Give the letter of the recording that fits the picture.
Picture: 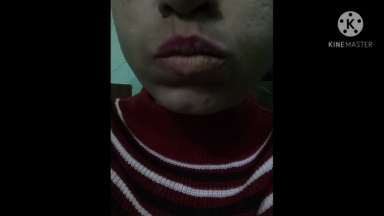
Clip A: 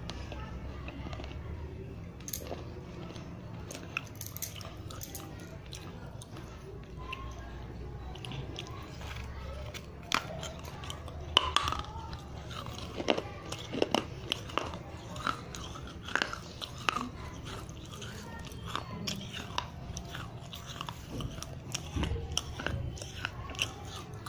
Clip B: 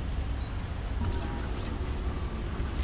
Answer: A